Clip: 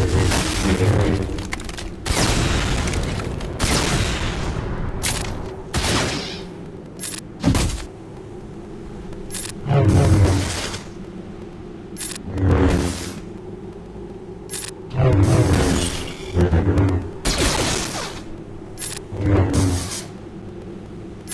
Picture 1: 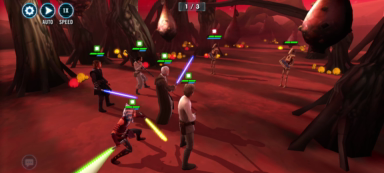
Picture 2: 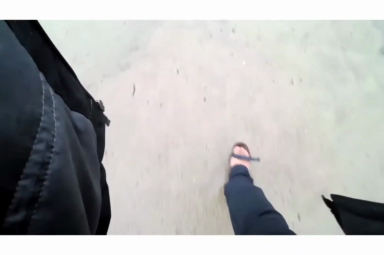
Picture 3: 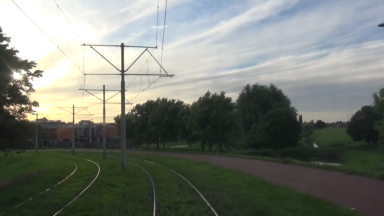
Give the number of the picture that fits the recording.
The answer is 1